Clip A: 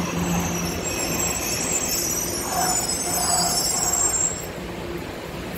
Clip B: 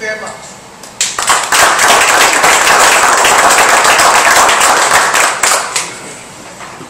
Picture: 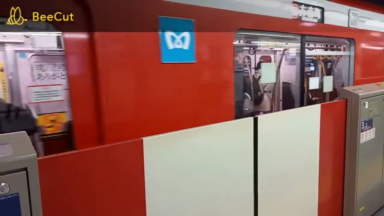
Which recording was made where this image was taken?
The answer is A